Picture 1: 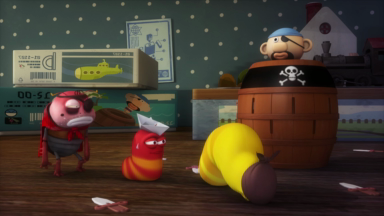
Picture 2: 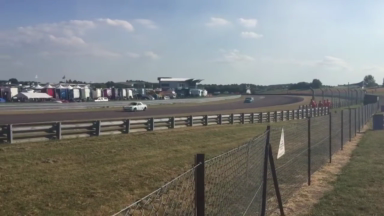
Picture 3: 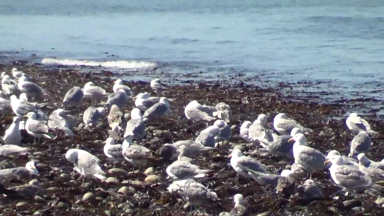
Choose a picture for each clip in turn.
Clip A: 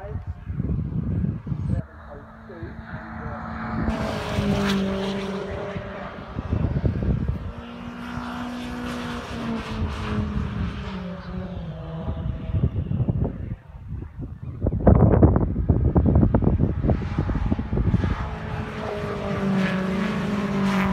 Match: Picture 2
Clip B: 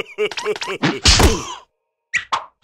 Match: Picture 1